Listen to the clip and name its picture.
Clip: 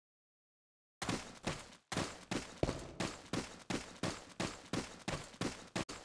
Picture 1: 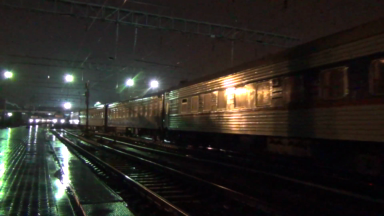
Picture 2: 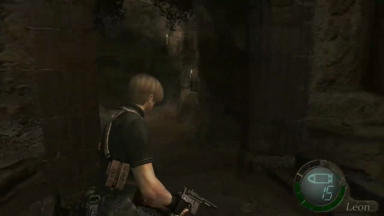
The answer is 2